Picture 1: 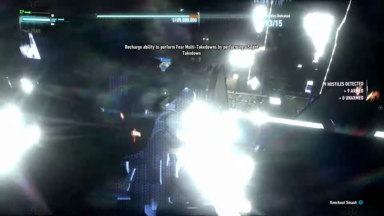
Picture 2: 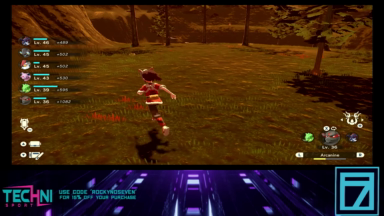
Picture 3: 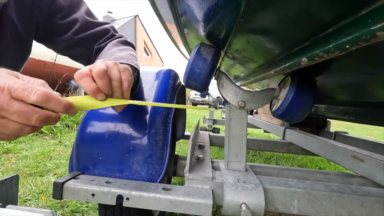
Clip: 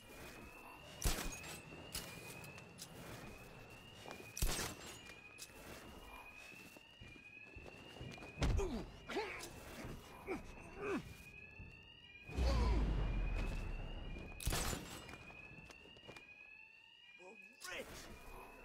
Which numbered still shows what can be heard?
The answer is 1